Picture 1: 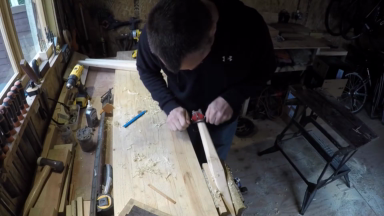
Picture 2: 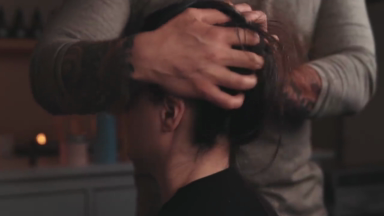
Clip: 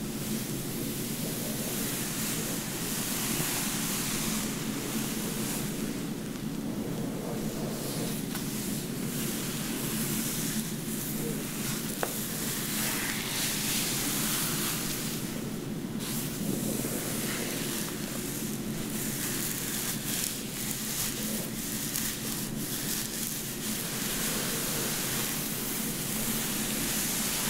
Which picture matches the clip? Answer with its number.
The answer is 2